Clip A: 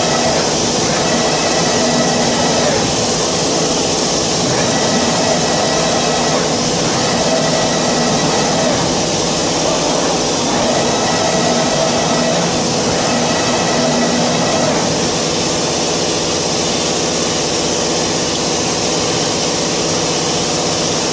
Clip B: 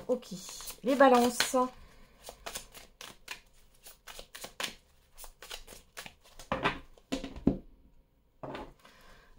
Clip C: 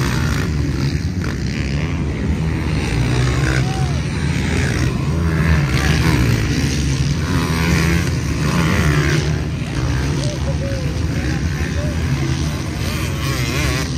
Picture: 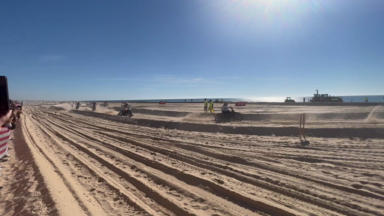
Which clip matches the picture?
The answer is C